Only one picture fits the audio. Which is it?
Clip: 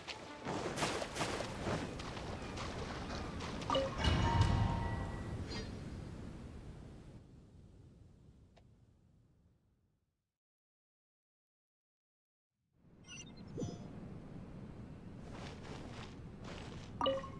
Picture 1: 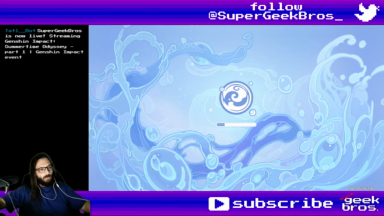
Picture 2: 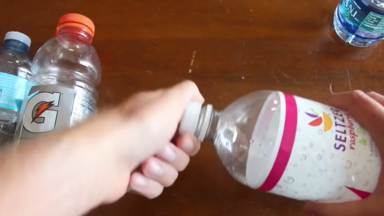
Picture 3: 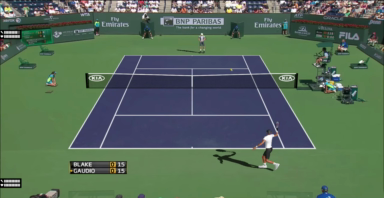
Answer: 1